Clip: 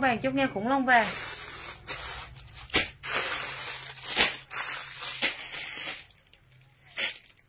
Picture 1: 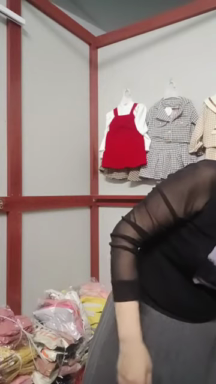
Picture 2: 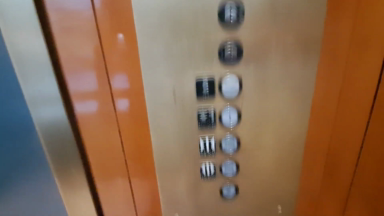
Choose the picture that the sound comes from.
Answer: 1